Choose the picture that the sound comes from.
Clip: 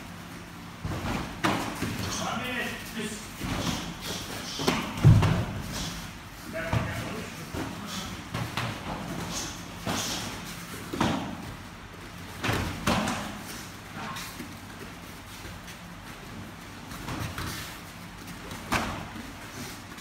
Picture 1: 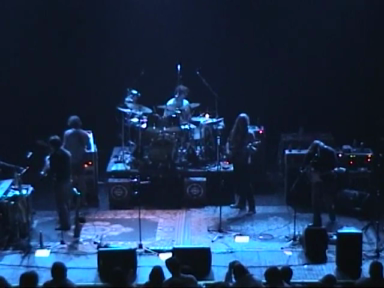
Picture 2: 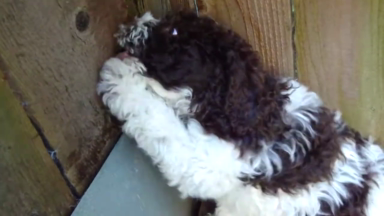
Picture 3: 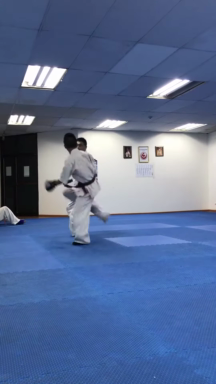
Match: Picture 3